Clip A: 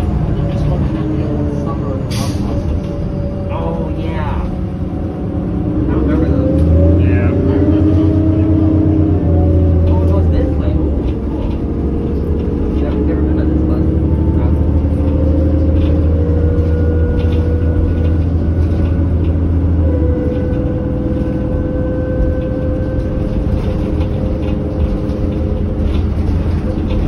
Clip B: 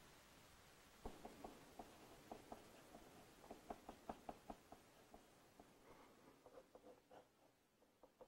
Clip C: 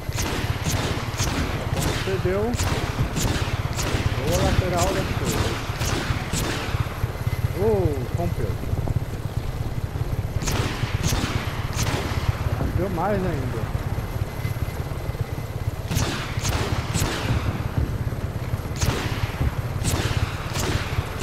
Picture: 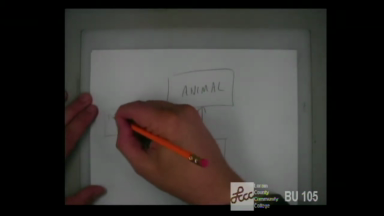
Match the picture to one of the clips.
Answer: B